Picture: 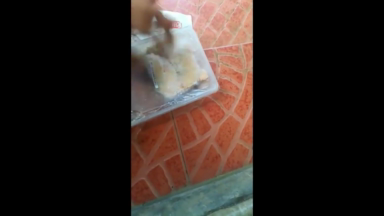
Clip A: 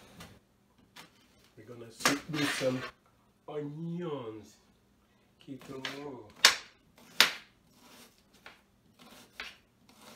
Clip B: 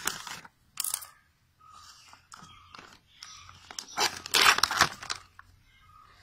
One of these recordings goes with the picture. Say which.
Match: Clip B